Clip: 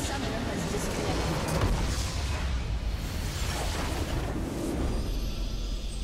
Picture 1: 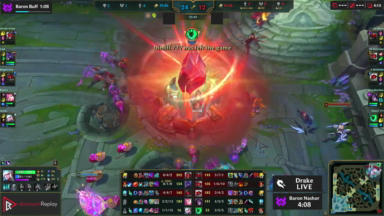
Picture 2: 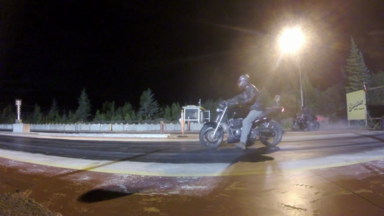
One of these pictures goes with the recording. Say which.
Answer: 1